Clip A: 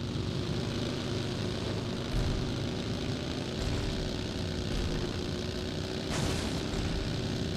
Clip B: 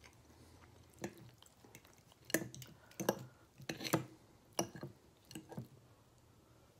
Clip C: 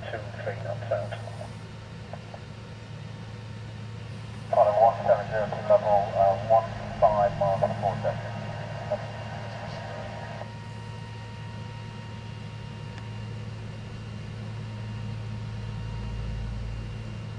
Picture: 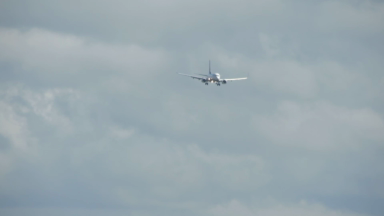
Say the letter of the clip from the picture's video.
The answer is C